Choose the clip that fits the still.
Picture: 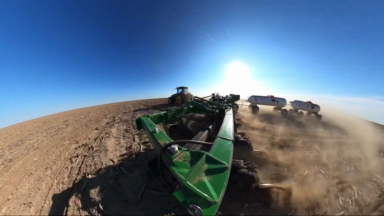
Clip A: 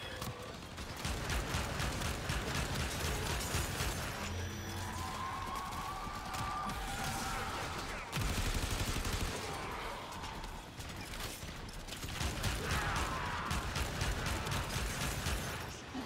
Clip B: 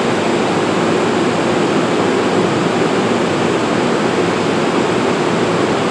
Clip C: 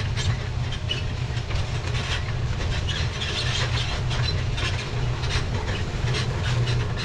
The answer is C